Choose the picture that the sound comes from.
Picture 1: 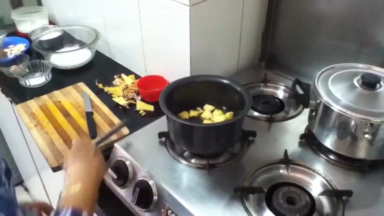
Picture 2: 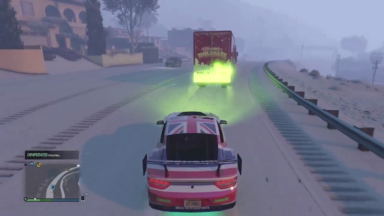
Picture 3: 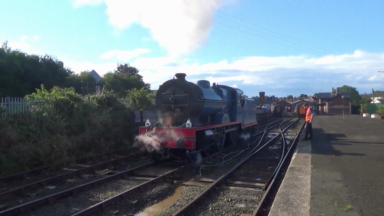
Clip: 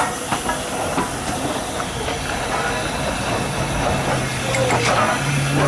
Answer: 3